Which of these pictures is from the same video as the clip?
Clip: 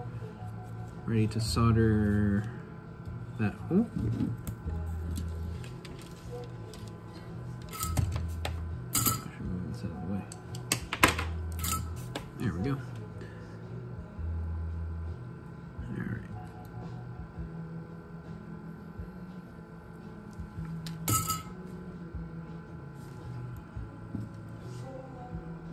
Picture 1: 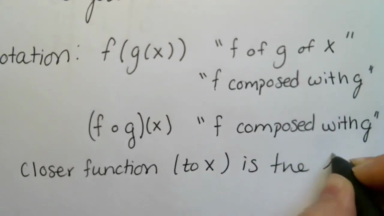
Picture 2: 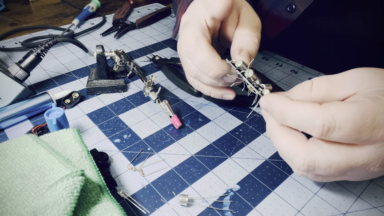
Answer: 2